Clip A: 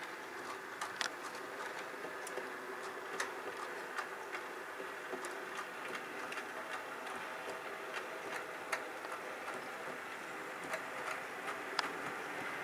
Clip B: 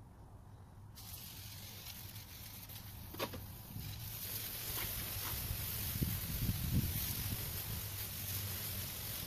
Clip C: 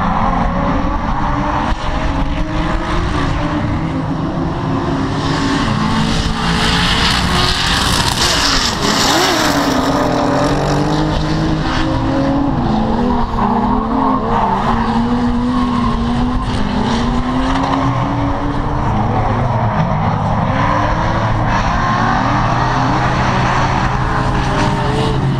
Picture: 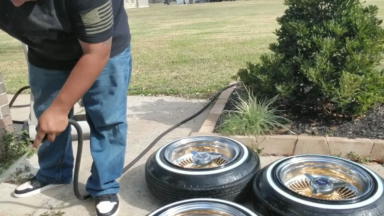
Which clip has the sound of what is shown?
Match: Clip B